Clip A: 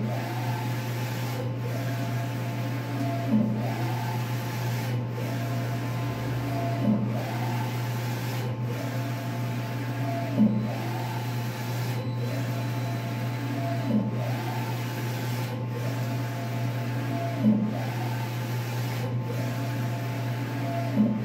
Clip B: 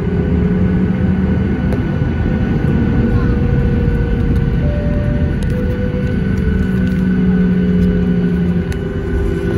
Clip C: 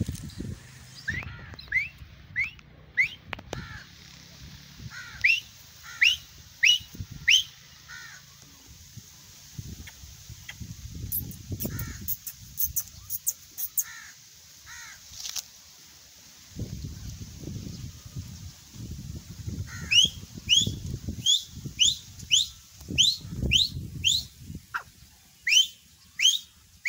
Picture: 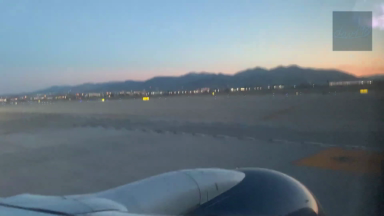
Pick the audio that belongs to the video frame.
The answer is B